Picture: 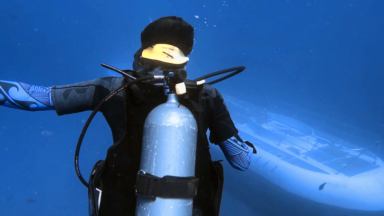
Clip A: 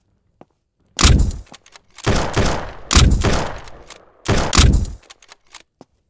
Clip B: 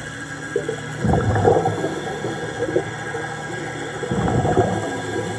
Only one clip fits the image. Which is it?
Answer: B